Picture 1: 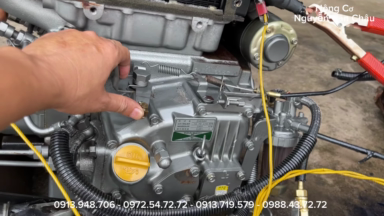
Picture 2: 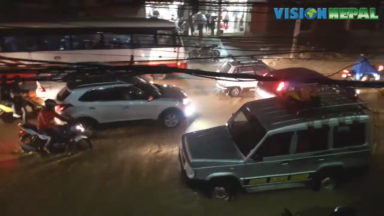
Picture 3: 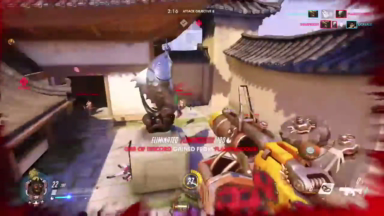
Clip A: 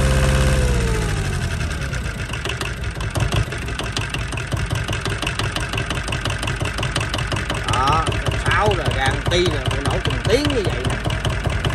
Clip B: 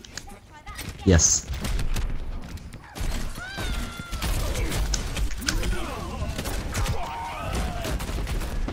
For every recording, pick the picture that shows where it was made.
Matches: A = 1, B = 3